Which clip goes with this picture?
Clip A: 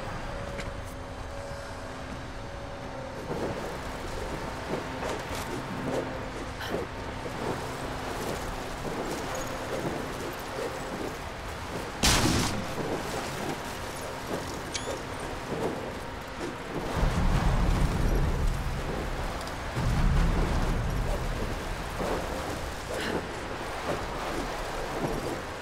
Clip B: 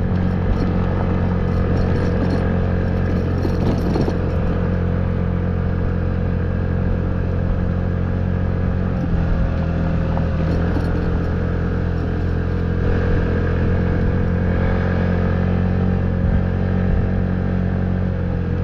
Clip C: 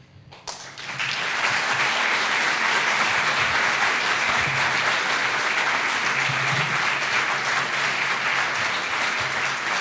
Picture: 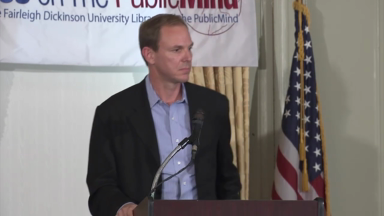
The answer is C